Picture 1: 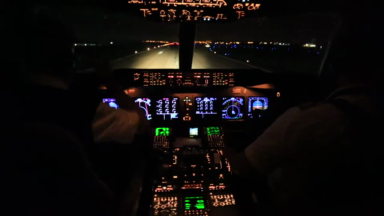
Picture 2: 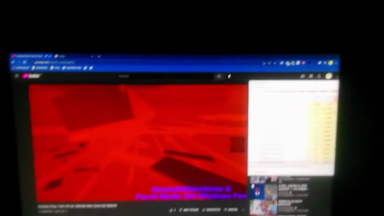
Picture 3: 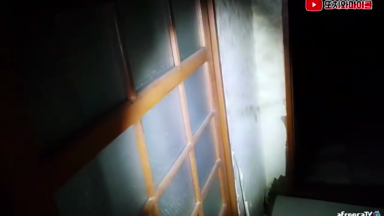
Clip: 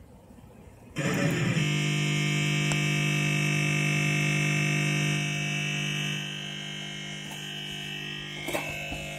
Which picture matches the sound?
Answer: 2